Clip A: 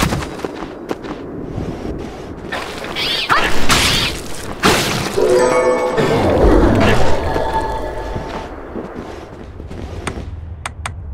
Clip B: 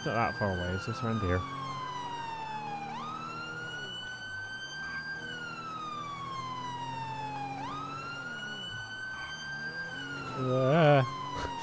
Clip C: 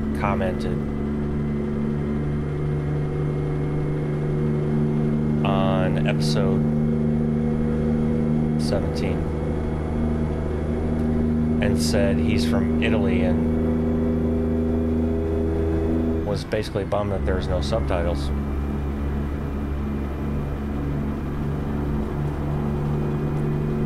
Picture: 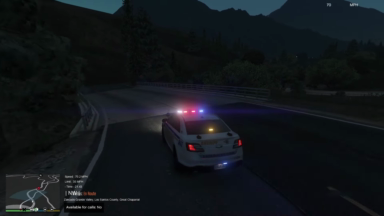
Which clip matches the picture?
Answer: B